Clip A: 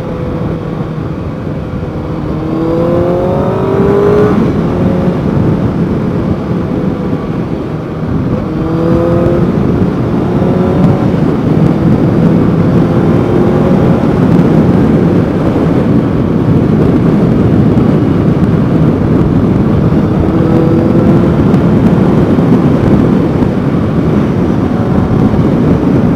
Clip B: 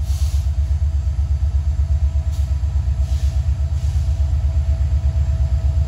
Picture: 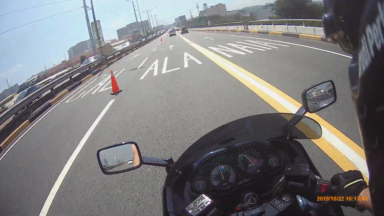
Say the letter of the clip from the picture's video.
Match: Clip A